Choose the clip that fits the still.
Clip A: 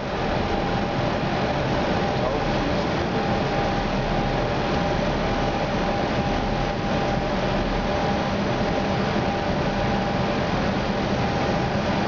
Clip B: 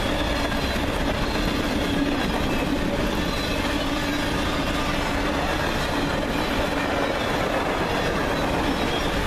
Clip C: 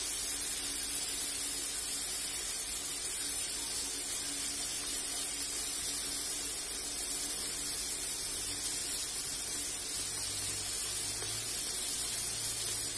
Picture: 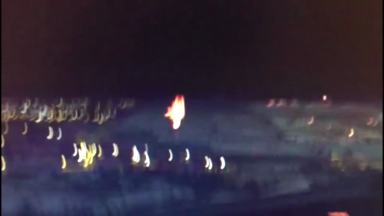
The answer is A